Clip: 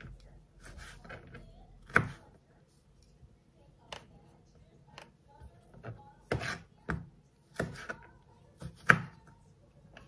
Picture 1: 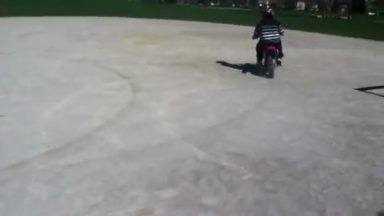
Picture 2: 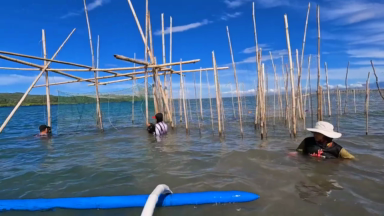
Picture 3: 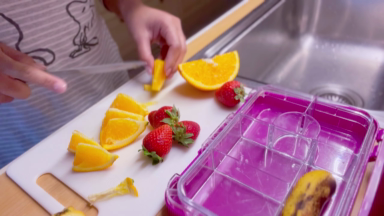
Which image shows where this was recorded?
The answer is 3